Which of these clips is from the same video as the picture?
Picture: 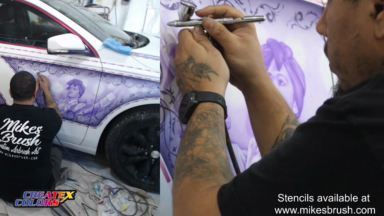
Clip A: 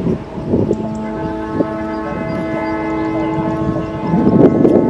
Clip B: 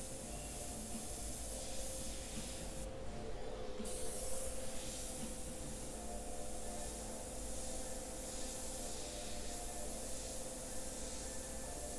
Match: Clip B